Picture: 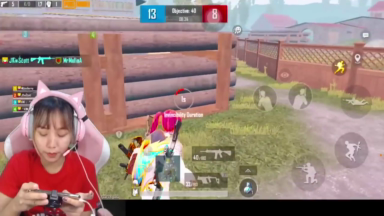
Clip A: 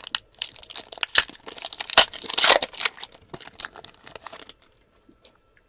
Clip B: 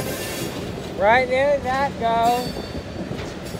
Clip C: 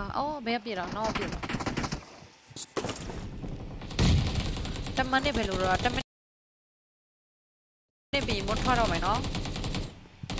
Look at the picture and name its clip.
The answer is C